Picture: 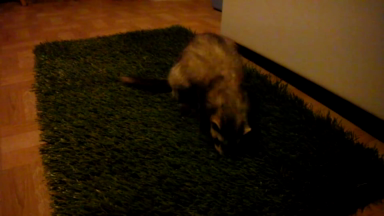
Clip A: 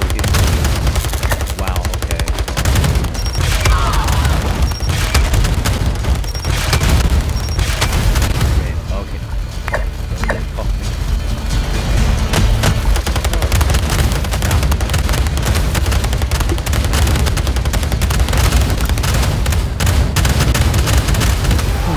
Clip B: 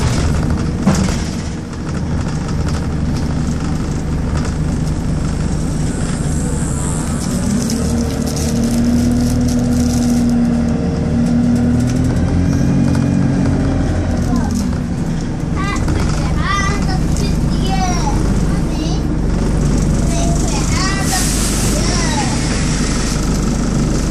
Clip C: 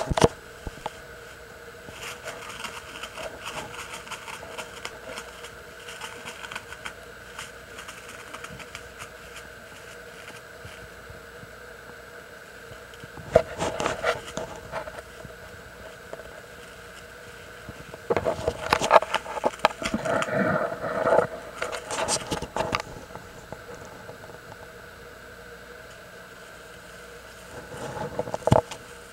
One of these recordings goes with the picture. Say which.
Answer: C